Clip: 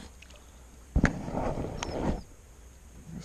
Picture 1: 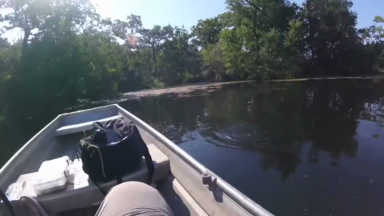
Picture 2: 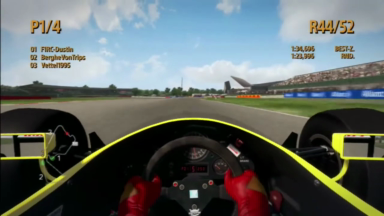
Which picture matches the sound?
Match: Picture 1